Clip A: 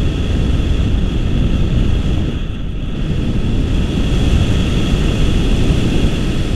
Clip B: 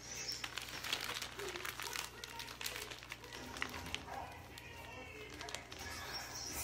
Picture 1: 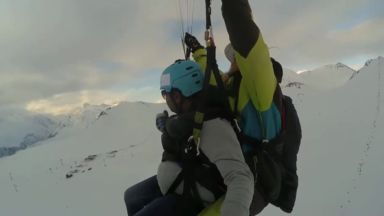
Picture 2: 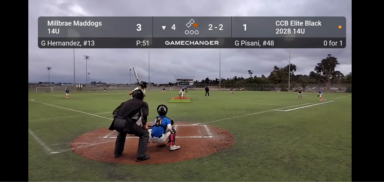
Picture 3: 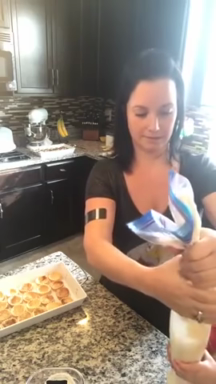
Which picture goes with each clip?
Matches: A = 1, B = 3